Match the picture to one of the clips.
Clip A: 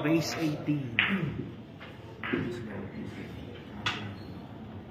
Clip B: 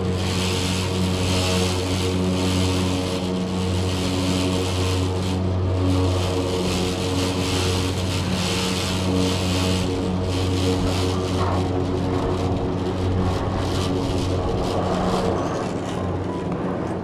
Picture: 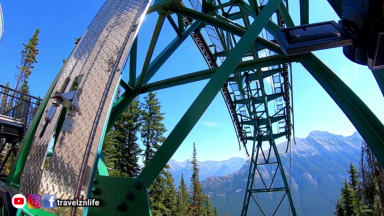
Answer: B